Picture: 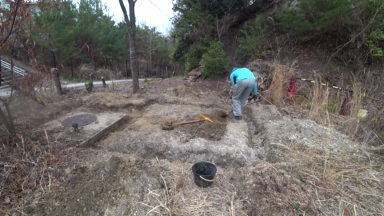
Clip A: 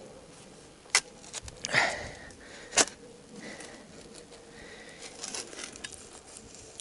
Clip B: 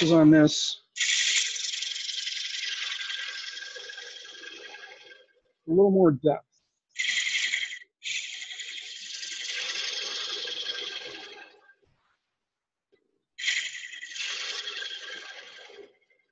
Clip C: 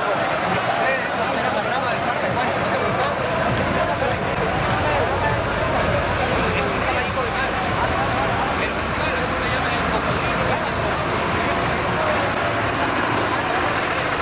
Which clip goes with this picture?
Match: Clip A